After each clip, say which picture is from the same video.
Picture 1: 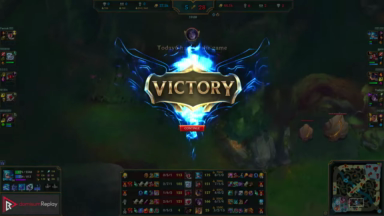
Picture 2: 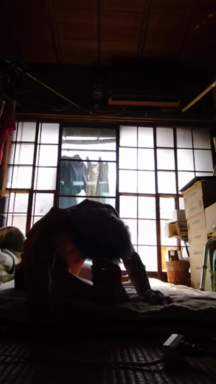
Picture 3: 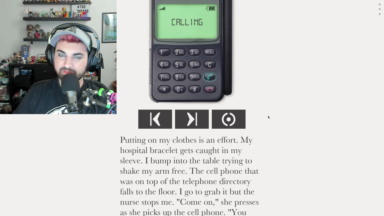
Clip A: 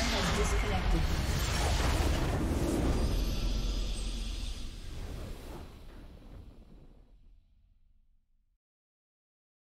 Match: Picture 1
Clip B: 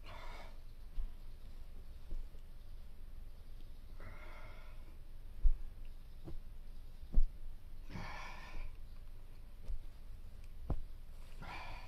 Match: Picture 2